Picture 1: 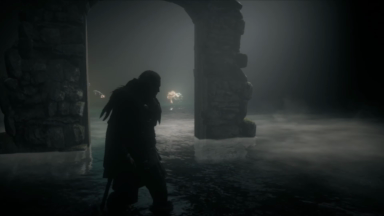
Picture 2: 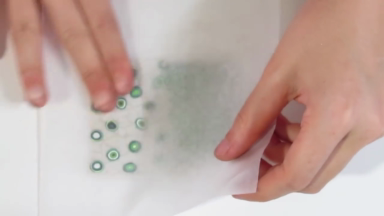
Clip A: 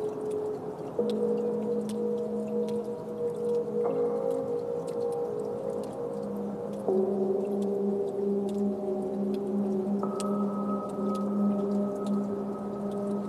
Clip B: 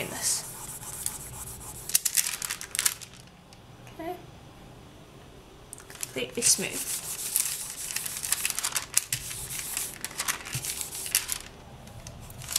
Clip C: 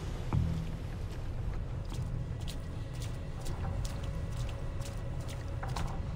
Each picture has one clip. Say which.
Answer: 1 C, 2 B